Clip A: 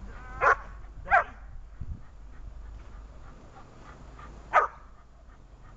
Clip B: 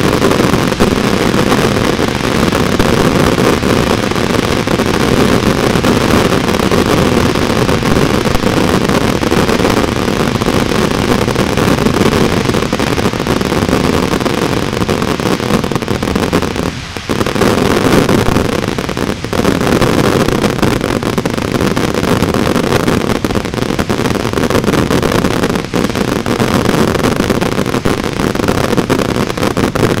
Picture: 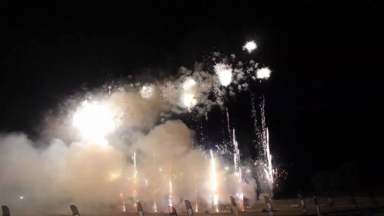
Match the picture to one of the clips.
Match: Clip B